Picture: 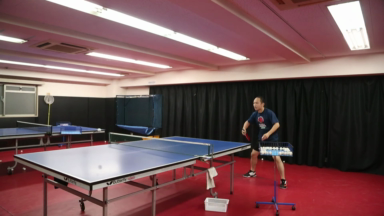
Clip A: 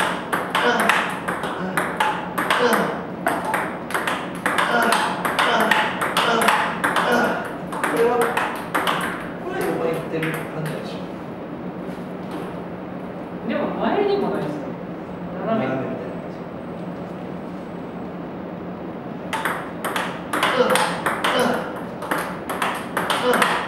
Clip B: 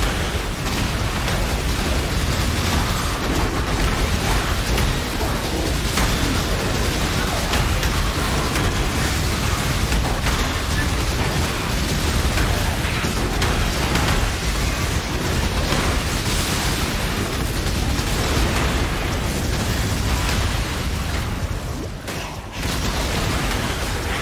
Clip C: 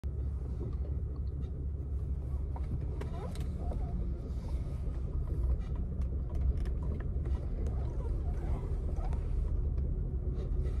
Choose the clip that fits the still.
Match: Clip A